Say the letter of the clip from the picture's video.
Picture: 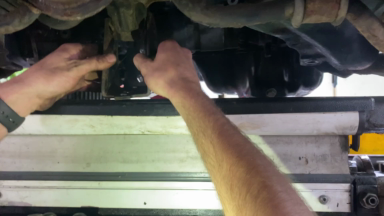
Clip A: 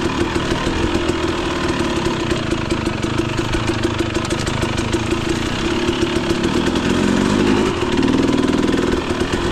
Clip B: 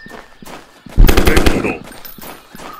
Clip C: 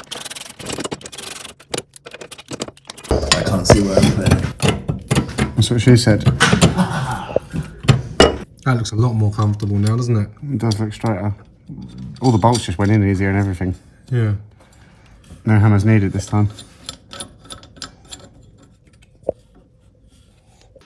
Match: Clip C